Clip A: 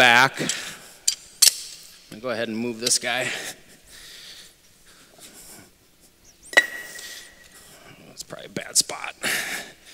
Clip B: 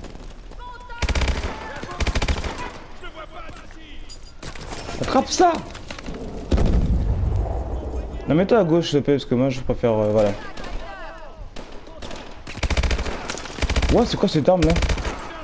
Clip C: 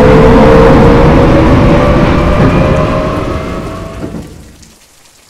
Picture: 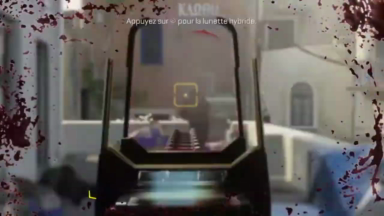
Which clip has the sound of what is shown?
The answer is B